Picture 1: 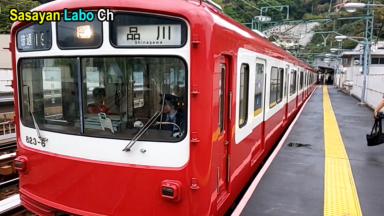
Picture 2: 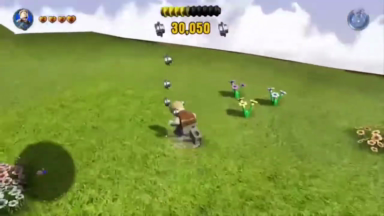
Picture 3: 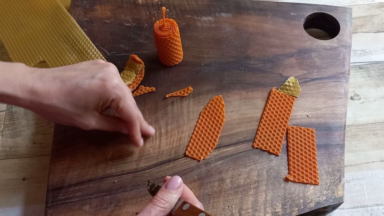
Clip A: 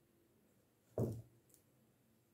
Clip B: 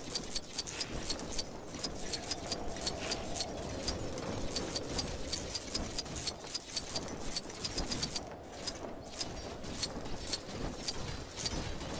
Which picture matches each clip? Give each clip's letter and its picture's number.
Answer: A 3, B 2